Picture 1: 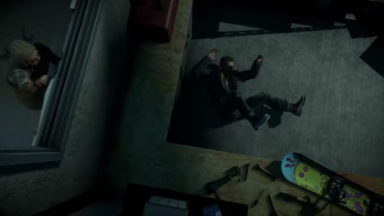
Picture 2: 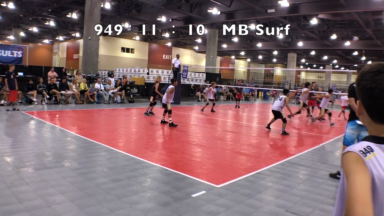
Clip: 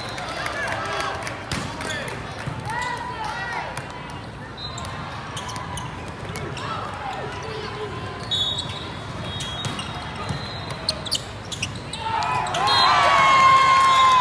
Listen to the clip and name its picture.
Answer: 2